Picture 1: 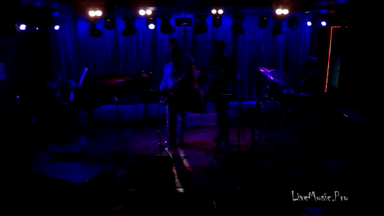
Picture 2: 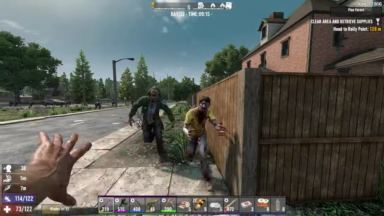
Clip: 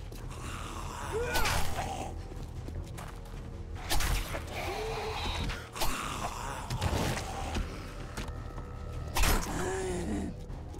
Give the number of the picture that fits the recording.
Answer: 2